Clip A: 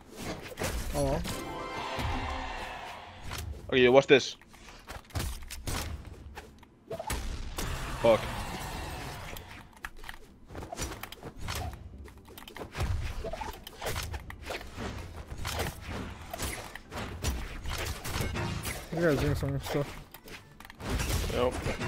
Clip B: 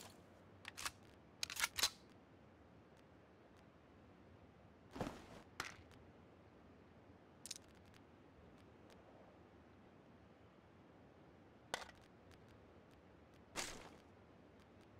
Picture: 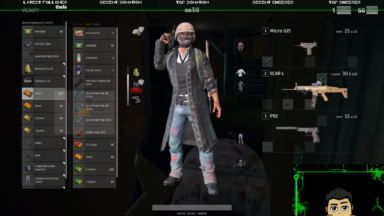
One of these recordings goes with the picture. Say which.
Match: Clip B